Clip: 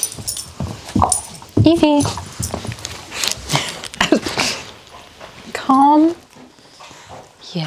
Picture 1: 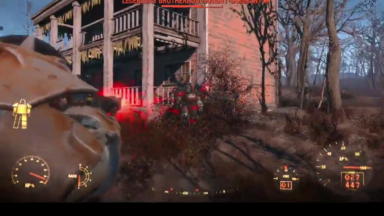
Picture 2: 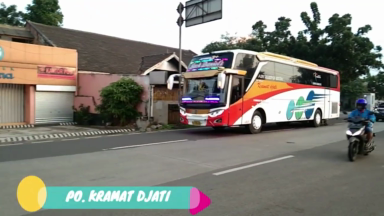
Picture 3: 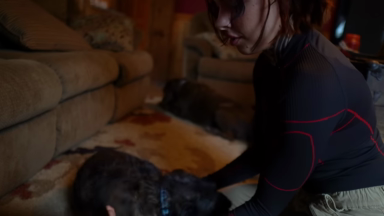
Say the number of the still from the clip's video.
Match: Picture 3